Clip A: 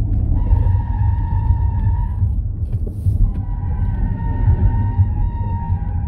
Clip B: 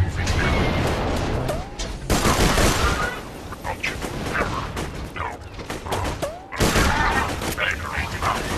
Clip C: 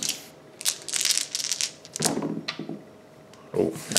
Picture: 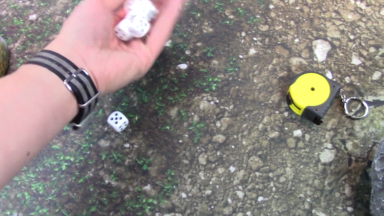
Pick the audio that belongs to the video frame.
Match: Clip C